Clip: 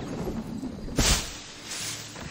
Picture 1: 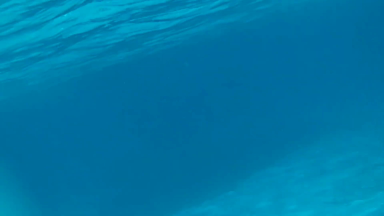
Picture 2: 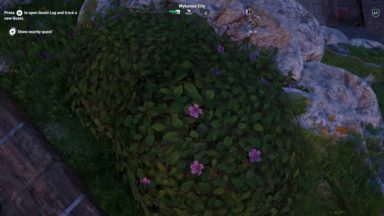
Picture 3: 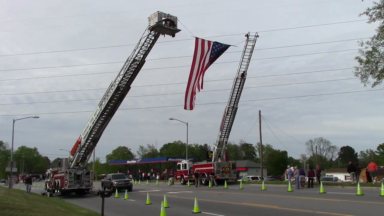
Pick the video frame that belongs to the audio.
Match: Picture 2